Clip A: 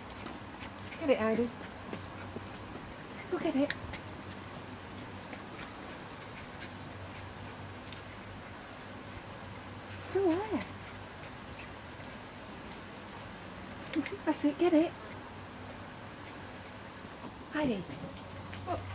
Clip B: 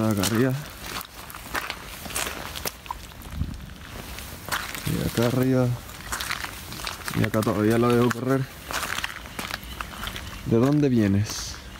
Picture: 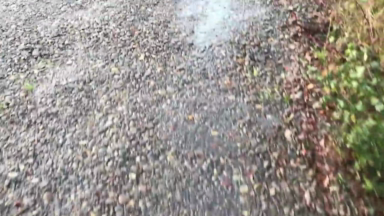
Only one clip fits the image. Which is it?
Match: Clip B